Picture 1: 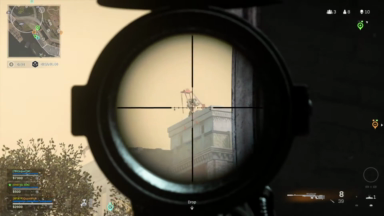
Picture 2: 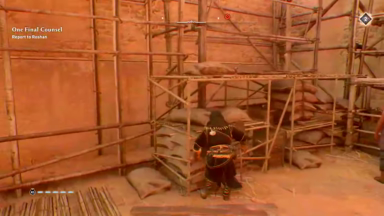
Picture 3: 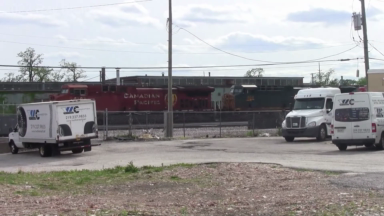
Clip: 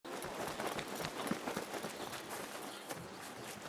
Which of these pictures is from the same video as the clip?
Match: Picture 2